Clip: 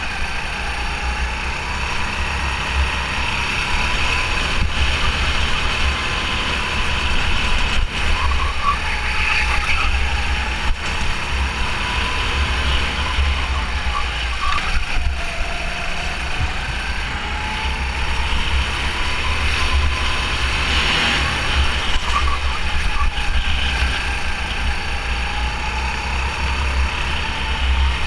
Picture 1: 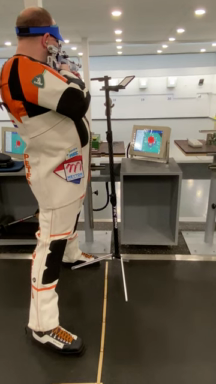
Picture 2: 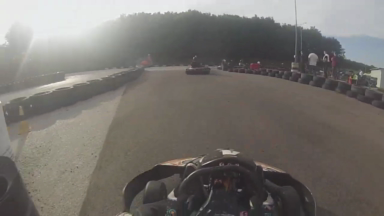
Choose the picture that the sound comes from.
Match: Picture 2